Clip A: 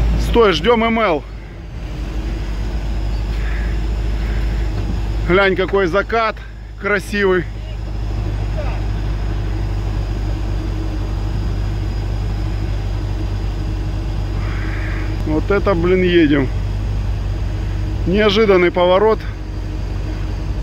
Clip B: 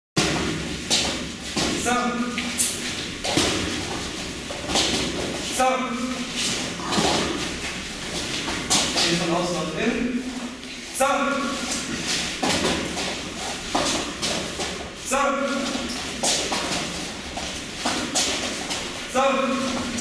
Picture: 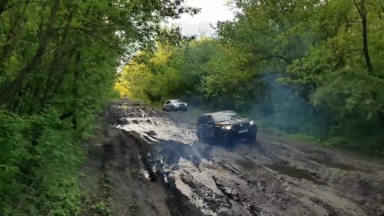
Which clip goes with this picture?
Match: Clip A